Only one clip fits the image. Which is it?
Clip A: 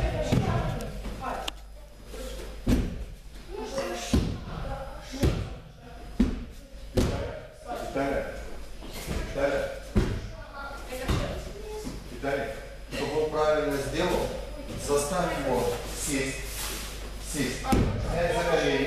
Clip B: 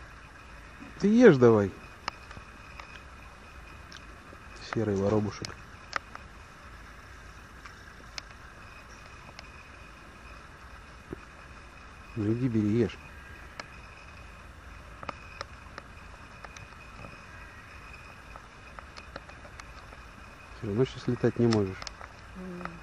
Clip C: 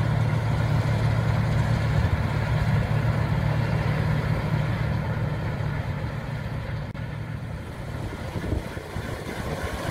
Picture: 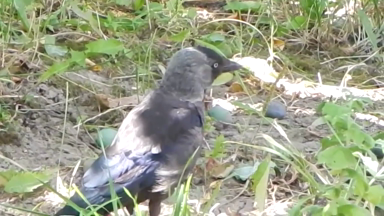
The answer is B